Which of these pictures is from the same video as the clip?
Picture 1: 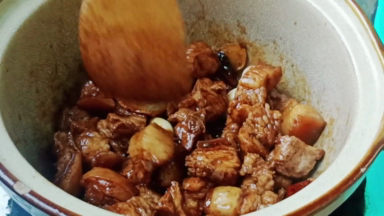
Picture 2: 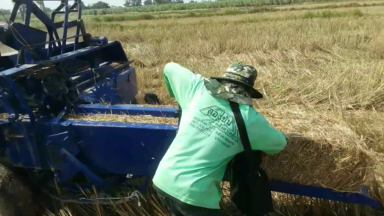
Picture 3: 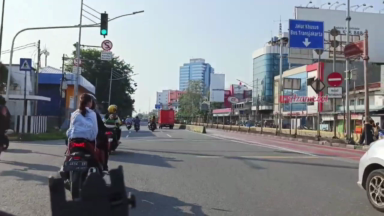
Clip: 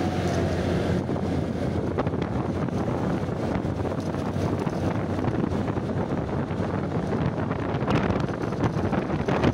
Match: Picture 3